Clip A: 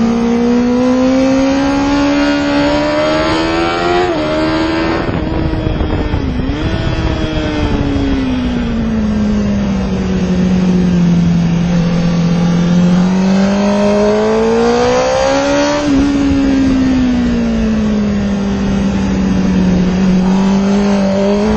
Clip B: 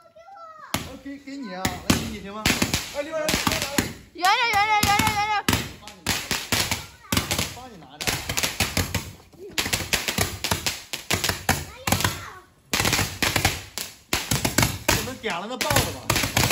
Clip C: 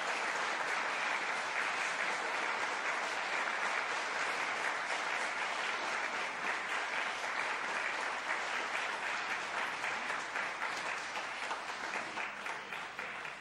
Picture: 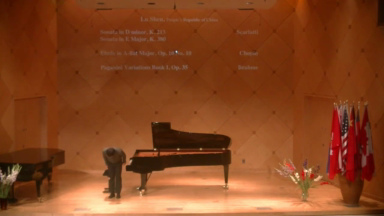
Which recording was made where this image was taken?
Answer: C